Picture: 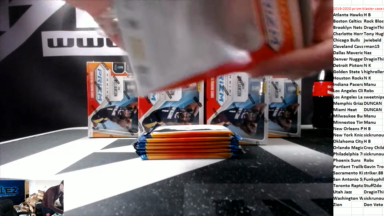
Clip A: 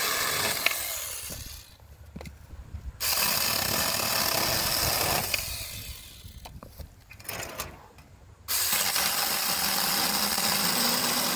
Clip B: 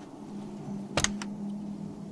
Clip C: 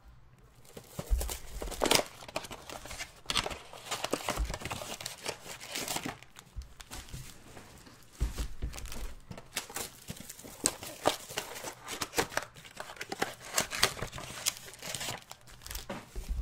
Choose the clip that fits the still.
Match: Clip C